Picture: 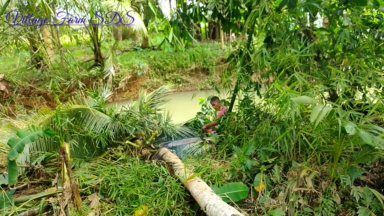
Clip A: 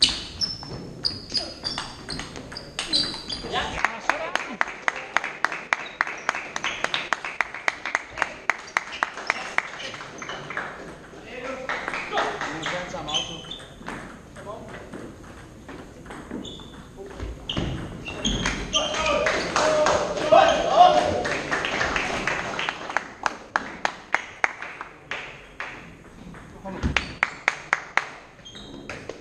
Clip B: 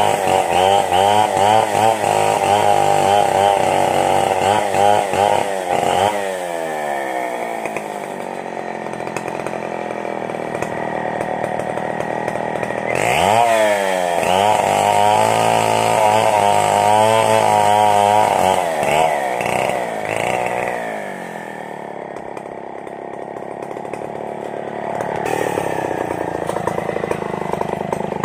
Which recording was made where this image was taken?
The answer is B